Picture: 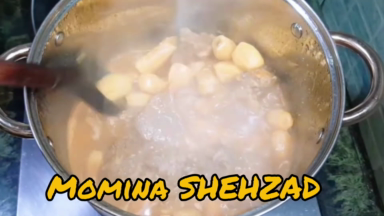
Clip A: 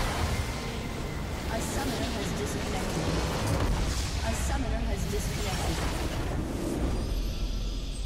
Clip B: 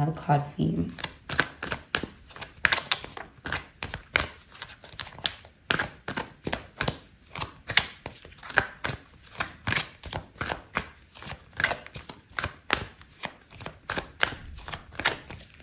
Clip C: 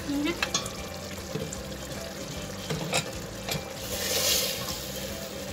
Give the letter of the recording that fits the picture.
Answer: C